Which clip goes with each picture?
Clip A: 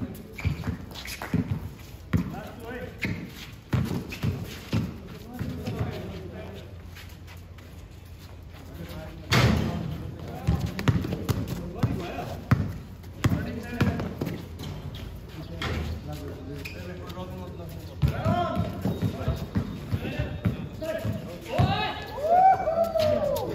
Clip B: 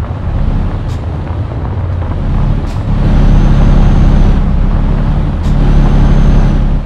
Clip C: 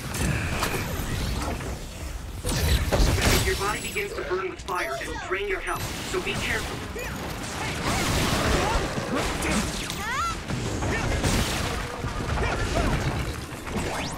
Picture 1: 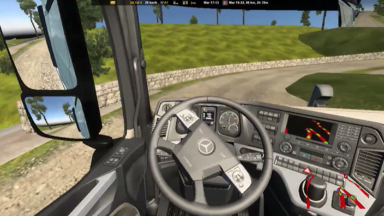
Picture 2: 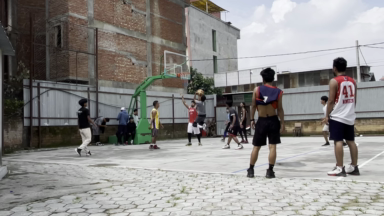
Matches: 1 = B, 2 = A